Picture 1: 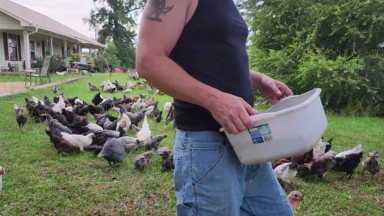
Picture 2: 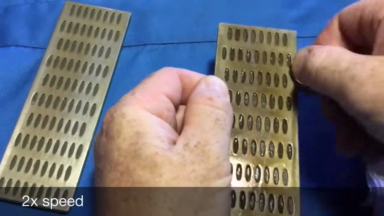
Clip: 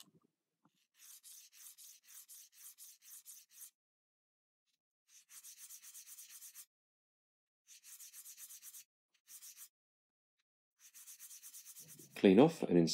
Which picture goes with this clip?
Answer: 2